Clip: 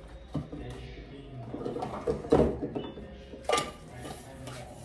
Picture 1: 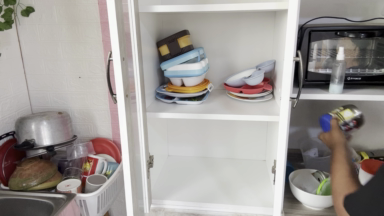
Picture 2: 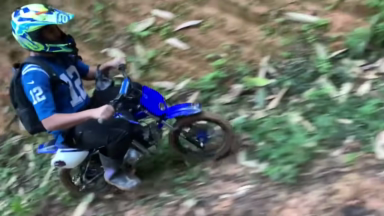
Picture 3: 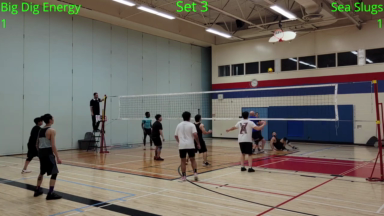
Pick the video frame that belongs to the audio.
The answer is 1